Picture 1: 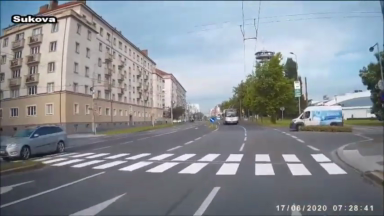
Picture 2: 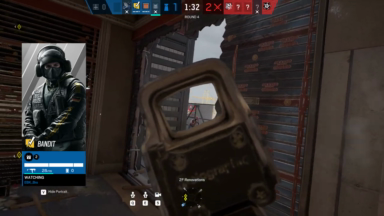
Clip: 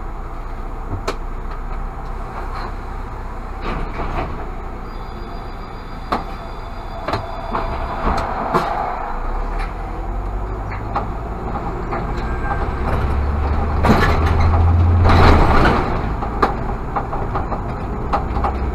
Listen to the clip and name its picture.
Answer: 1